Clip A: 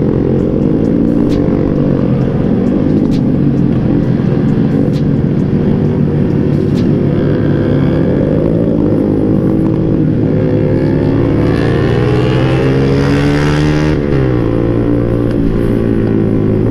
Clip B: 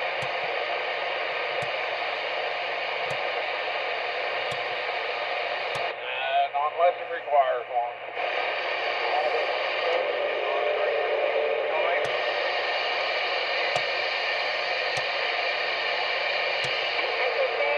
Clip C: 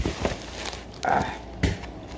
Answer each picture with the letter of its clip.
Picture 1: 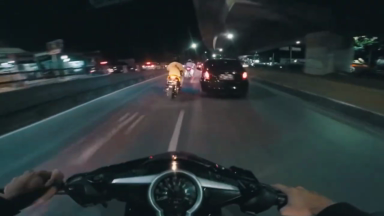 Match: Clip A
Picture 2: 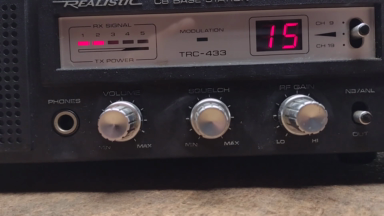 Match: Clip B